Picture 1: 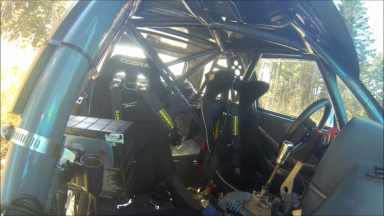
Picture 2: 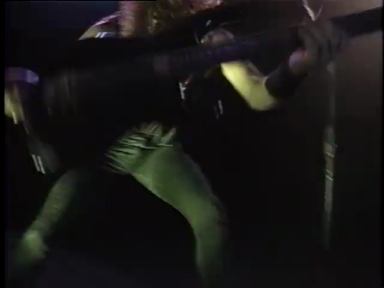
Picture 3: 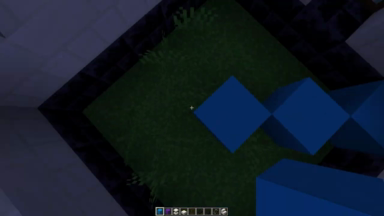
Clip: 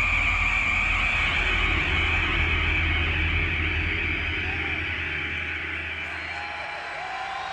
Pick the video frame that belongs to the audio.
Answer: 2